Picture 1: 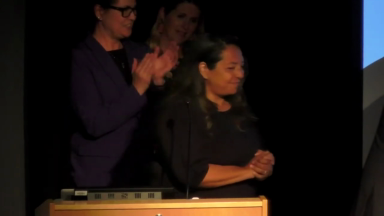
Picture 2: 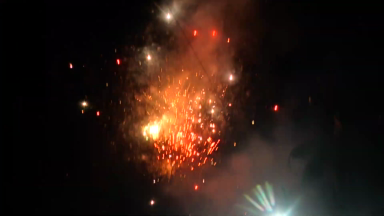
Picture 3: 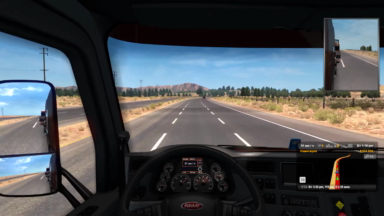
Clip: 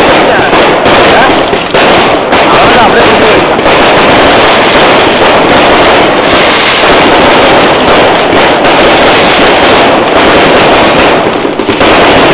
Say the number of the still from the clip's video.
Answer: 2